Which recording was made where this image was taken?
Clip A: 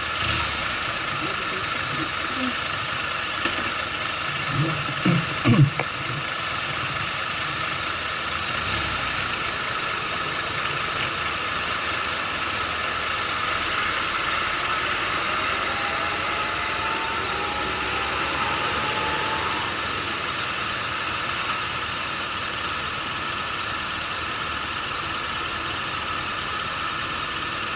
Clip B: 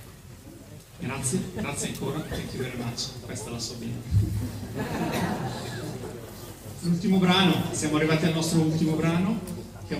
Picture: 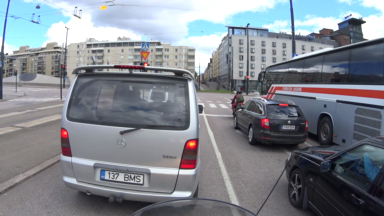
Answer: A